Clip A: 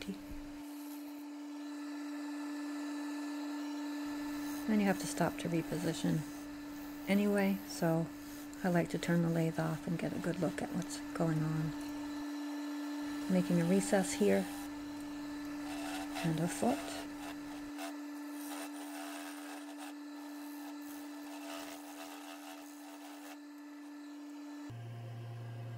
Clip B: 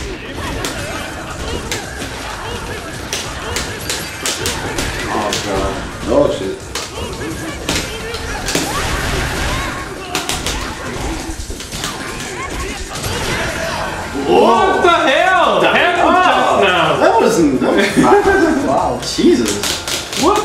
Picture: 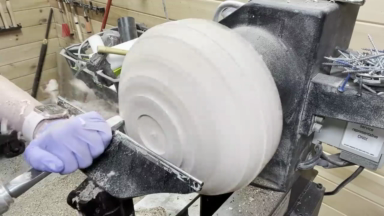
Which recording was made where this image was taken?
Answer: A